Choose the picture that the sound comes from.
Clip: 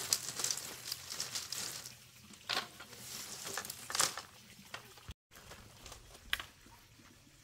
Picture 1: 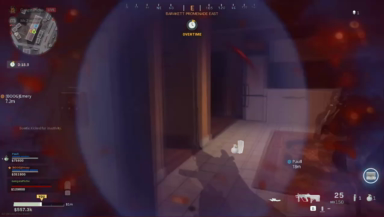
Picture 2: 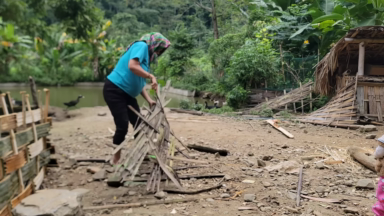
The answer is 2